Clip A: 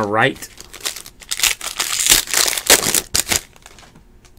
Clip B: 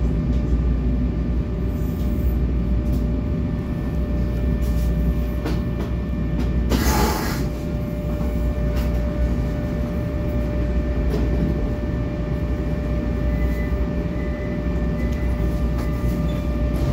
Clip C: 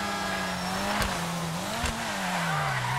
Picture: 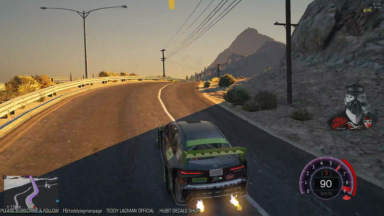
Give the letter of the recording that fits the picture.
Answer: C